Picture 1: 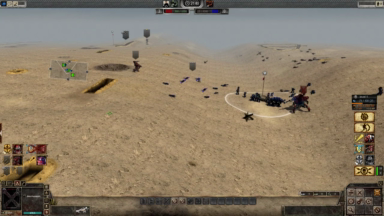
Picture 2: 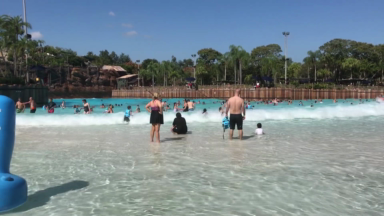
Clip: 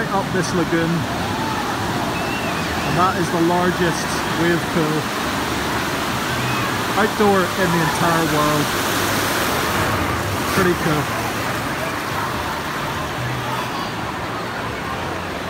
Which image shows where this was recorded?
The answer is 2